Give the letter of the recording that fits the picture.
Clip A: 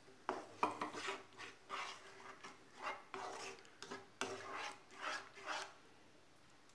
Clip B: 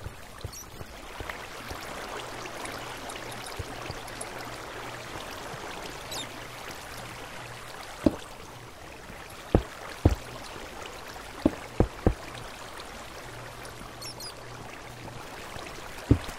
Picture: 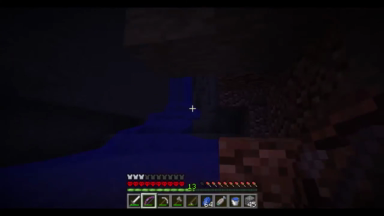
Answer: B